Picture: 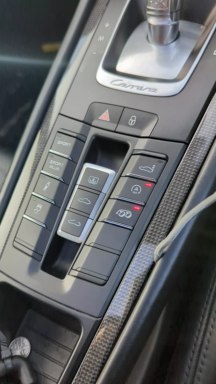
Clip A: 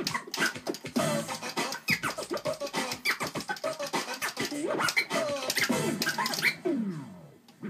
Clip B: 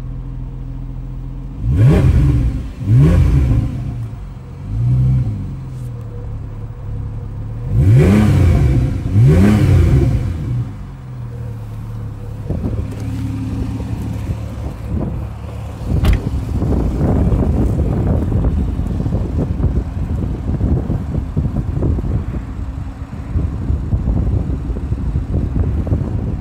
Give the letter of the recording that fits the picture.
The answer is B